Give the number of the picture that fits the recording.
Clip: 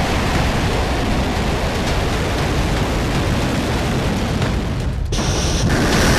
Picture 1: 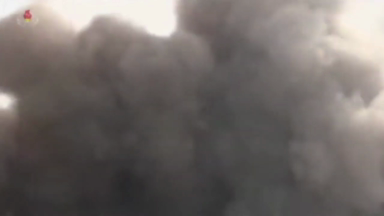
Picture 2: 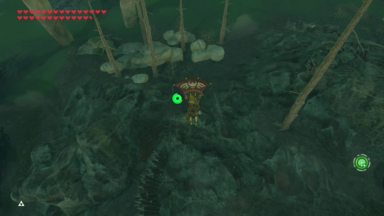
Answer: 1